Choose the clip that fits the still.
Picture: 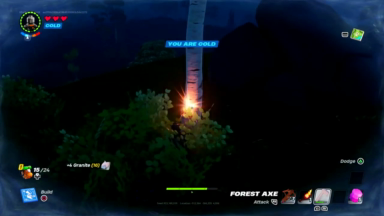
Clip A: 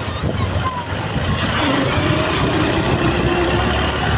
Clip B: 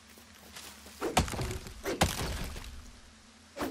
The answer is B